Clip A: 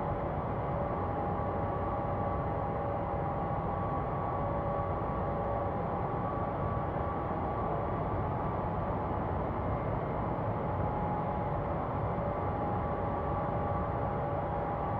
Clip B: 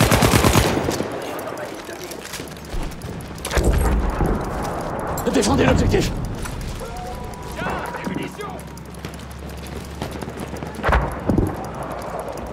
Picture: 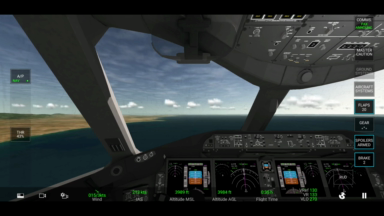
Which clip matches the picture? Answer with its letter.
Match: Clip A